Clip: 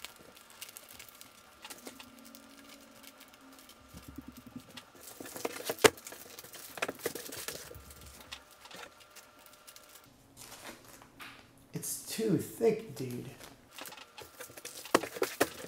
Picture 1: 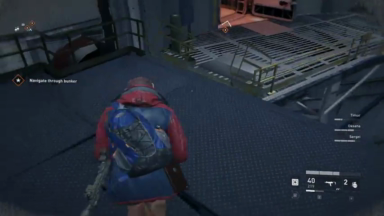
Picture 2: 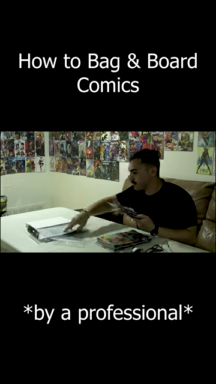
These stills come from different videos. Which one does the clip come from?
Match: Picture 2